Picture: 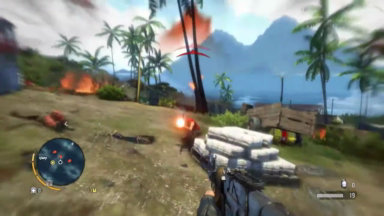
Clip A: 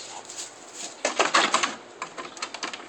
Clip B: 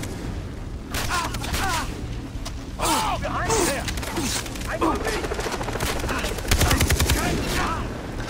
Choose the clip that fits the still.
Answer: B